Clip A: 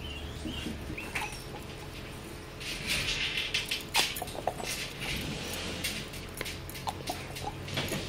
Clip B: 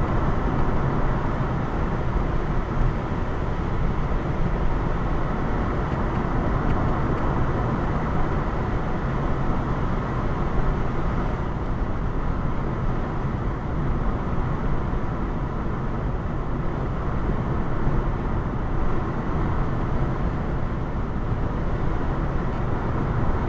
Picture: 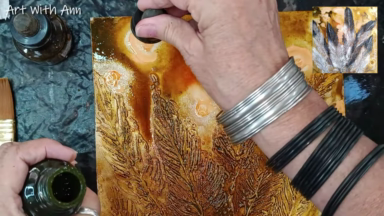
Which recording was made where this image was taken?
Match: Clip A